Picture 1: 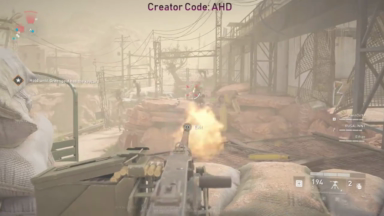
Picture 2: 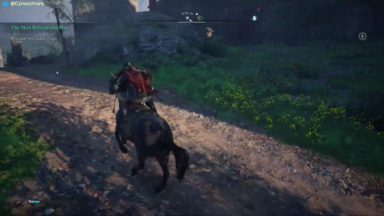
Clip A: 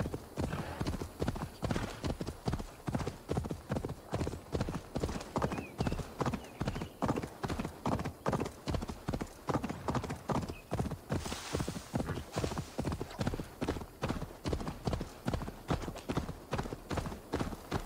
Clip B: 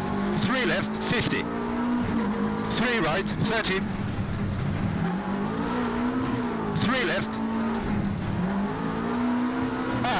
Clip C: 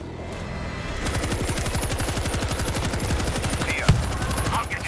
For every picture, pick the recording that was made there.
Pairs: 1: C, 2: A